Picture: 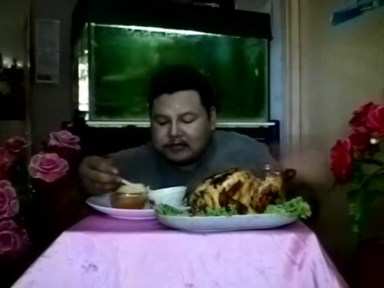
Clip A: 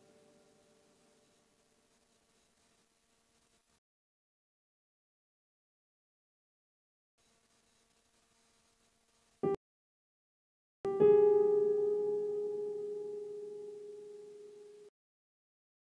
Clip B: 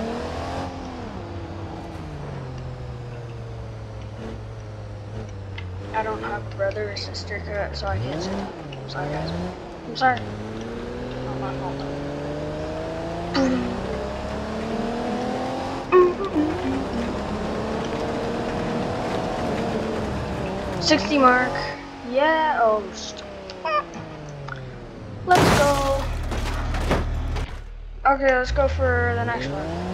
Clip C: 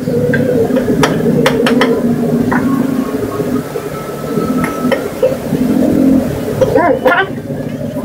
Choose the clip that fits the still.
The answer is C